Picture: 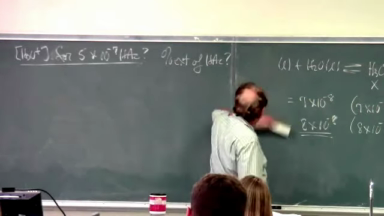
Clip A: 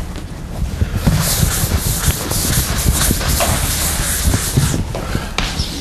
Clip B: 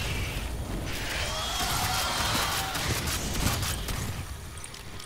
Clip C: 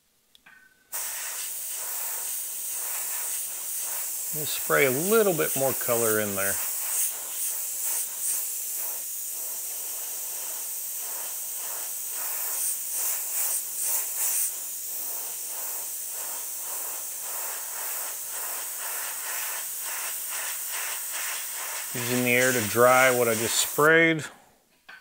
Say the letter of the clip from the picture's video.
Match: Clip A